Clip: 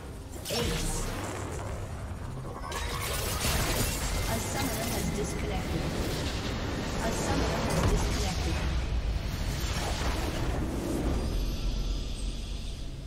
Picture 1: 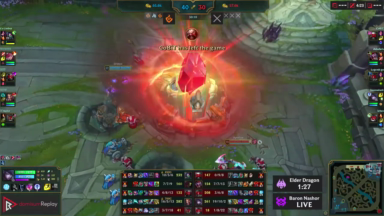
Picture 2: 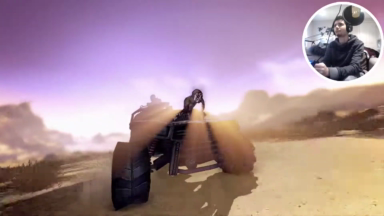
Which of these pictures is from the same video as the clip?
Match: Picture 1